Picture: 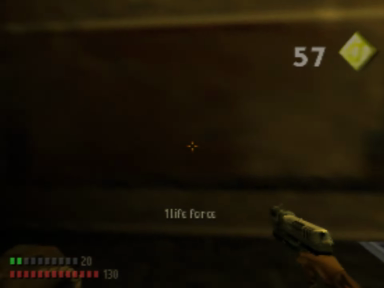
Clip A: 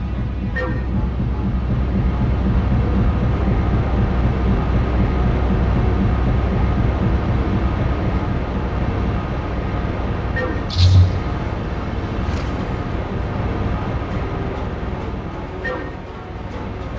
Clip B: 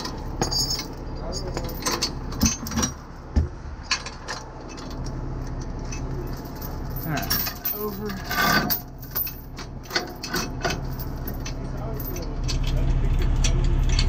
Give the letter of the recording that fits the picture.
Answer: A